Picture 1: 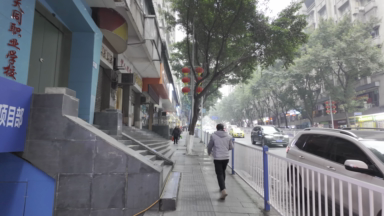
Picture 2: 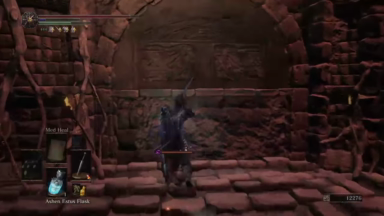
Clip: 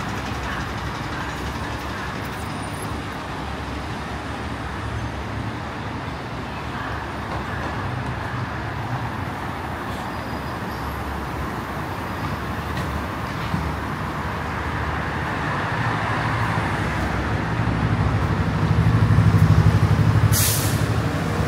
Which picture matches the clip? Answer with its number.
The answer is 1